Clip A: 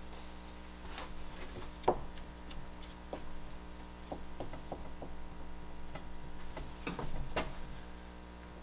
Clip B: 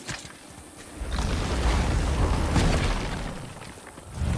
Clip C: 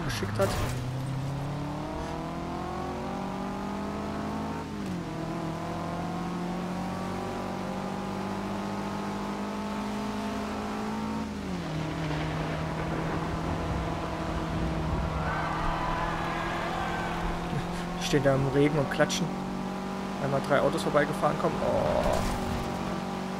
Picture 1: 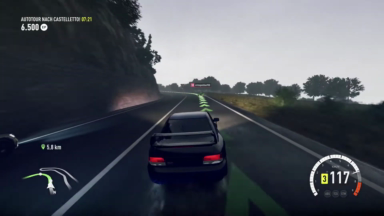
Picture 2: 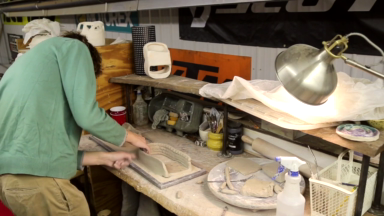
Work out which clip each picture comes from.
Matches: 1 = C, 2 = A